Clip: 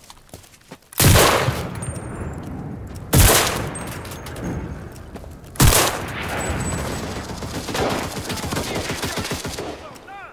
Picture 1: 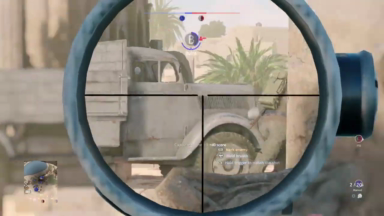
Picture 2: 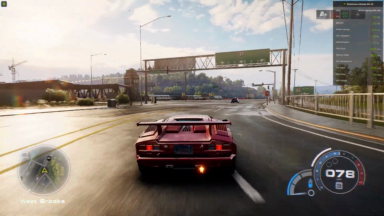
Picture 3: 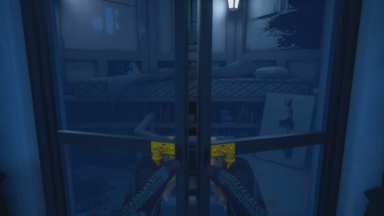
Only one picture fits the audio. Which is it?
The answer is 1